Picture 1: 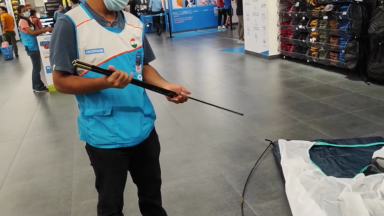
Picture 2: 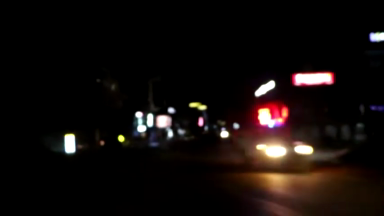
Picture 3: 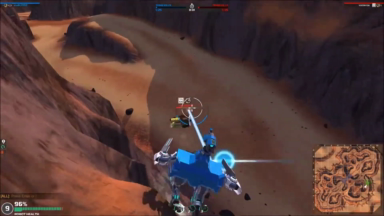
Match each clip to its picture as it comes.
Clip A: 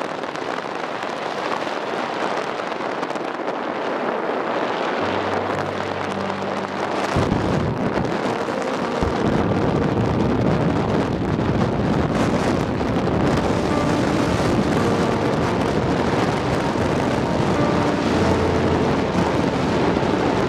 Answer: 2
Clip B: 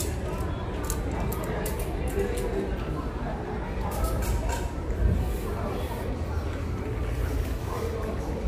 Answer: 1